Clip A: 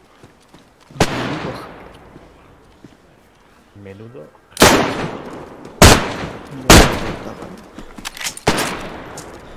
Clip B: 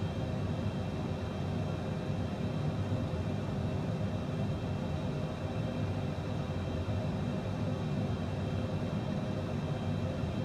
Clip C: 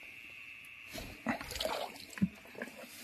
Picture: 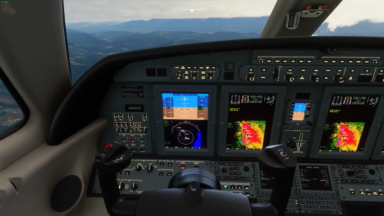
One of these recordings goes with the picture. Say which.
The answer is B